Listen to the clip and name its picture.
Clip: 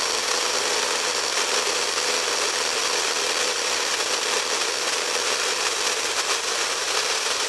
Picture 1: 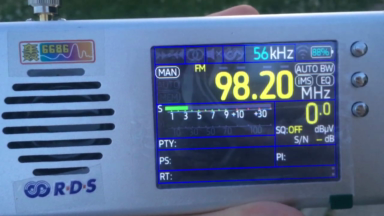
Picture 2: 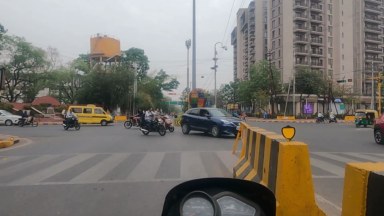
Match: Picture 1